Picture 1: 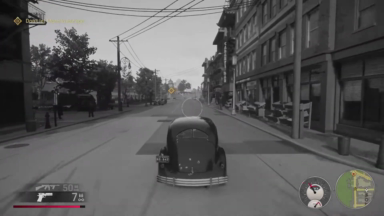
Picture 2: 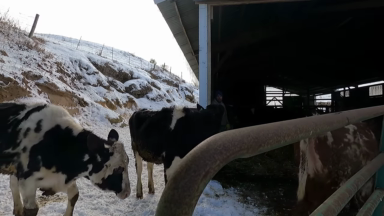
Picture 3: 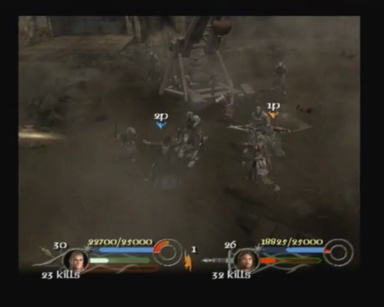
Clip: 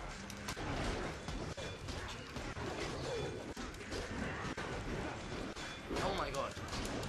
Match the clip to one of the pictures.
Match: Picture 3